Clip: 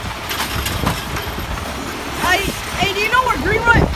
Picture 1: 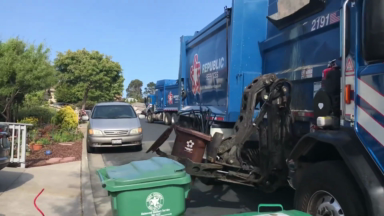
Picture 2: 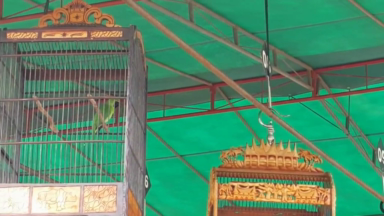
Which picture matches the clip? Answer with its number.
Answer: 1